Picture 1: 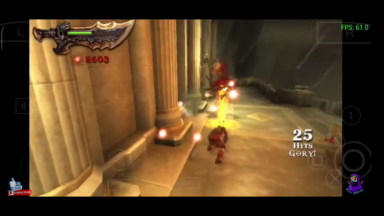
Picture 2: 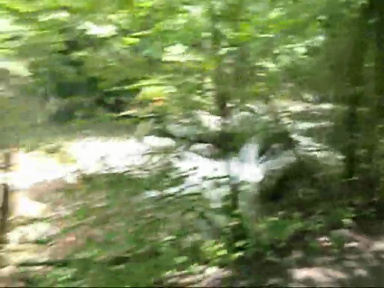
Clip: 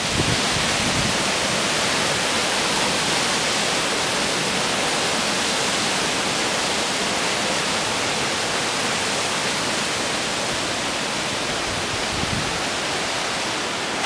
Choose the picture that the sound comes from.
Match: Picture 2